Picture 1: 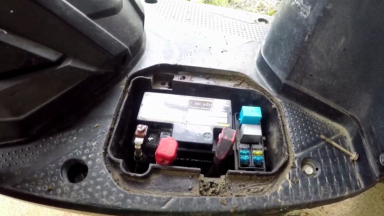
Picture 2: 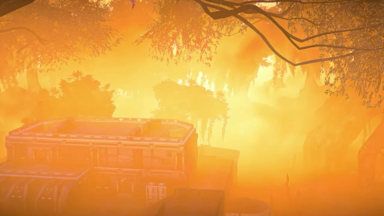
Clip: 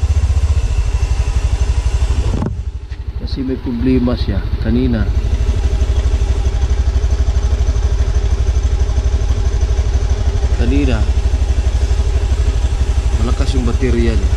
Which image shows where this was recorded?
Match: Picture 1